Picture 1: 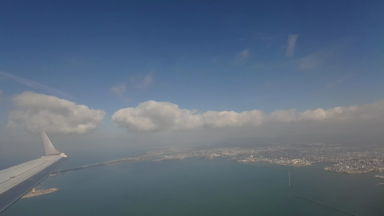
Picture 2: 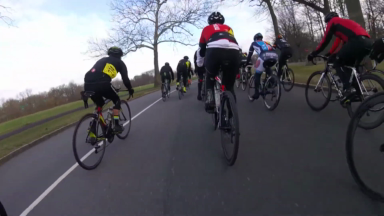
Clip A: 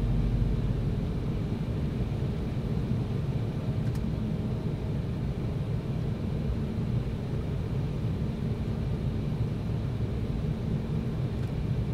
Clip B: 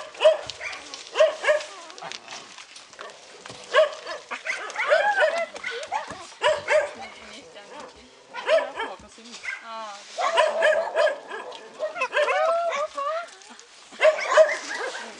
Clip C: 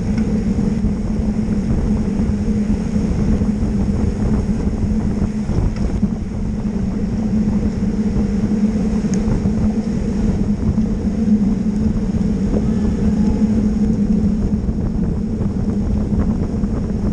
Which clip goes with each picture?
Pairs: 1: A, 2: C